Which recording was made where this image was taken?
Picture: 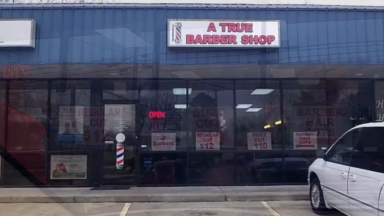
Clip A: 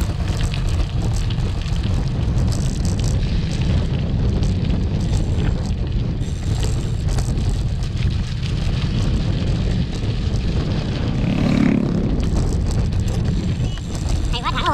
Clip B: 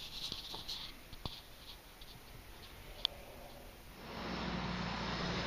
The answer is B